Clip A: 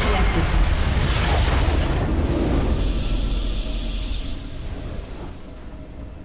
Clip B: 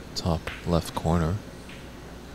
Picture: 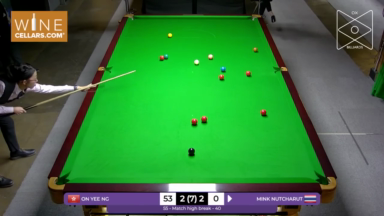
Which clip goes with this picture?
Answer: B